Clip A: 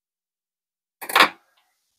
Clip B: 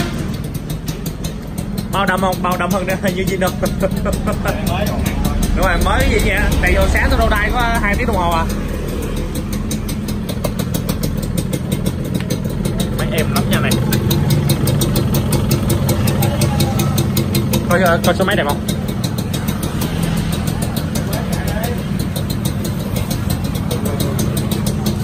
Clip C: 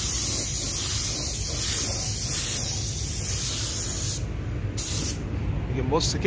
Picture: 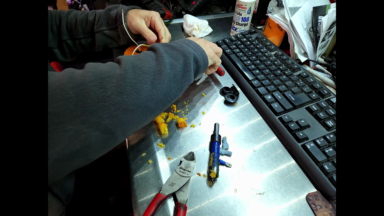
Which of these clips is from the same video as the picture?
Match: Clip A